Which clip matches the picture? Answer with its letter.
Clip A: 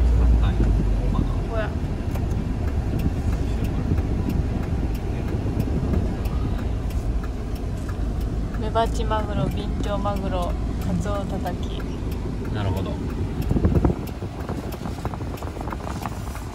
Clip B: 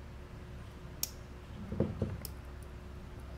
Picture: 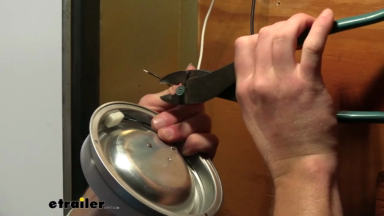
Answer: B